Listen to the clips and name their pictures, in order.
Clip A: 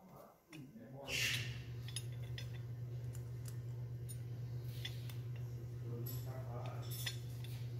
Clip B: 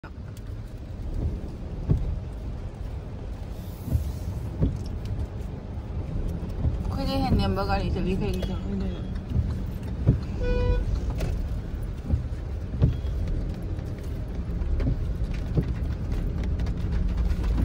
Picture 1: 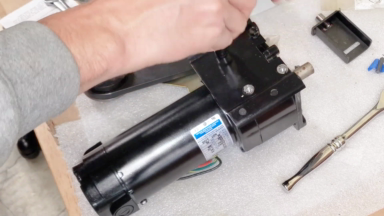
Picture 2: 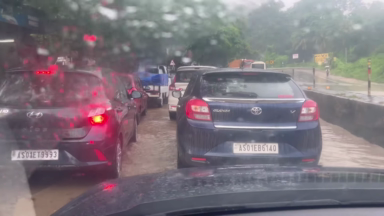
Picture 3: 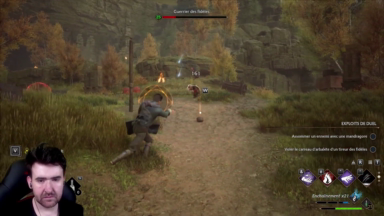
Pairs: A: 1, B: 2